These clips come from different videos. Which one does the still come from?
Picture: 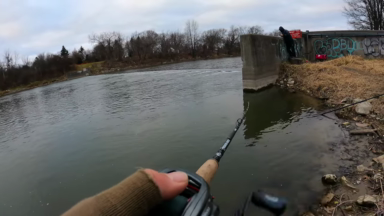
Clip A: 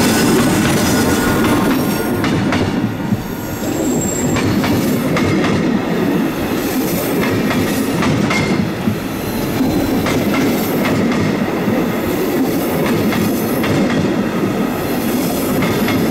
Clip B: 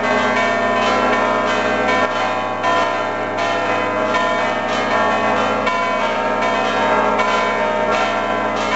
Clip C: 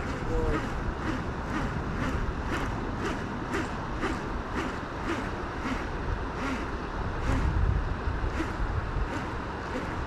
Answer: C